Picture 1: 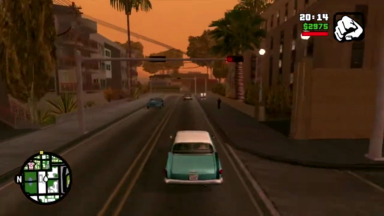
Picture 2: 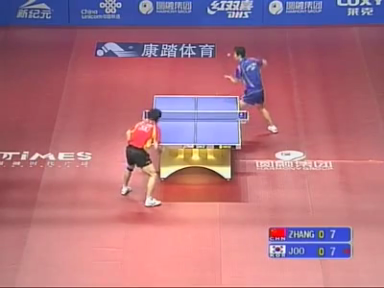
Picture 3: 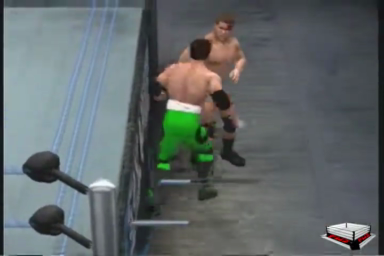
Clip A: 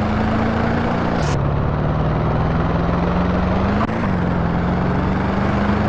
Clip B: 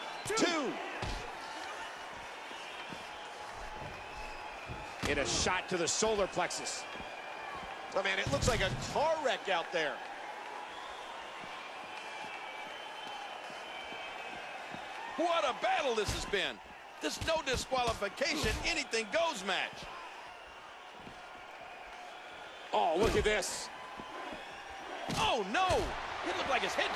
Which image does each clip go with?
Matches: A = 1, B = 3